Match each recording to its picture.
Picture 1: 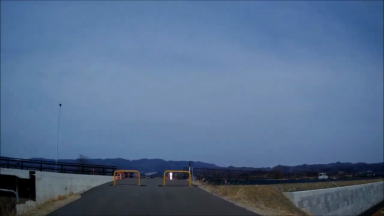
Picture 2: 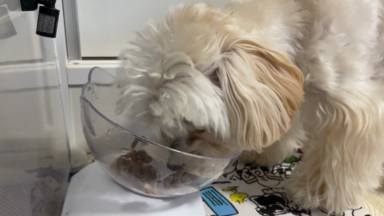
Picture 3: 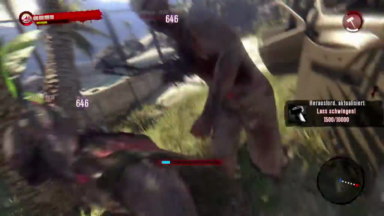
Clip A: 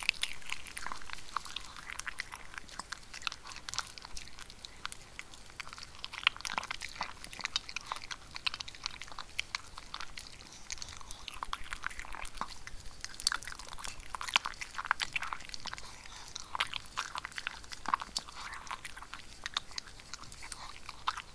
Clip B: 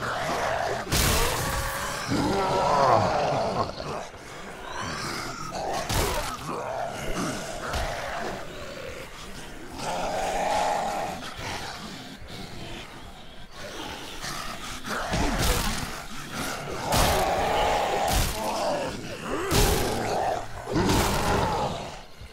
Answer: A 2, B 3